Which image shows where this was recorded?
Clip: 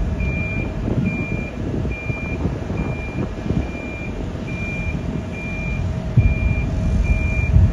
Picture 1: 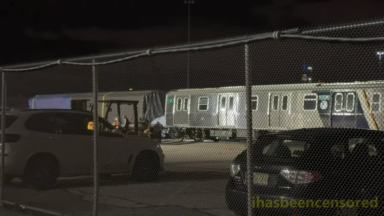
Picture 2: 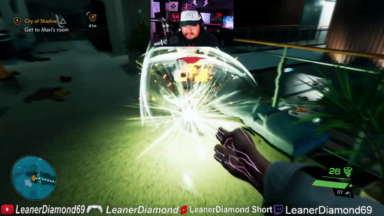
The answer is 1